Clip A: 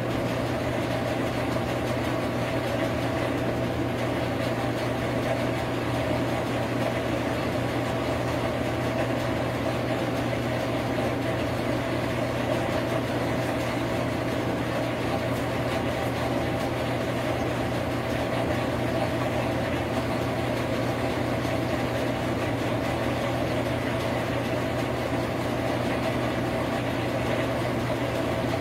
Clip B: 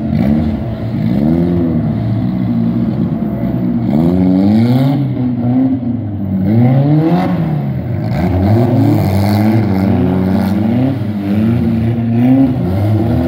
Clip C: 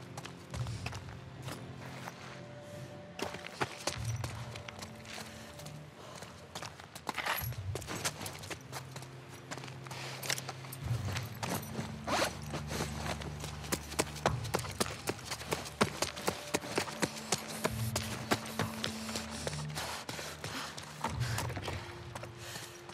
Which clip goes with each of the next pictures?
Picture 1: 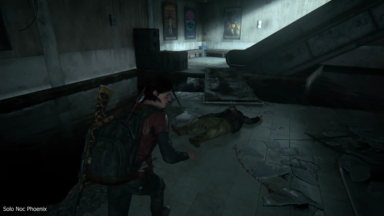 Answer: C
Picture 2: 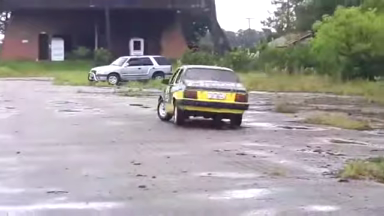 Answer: B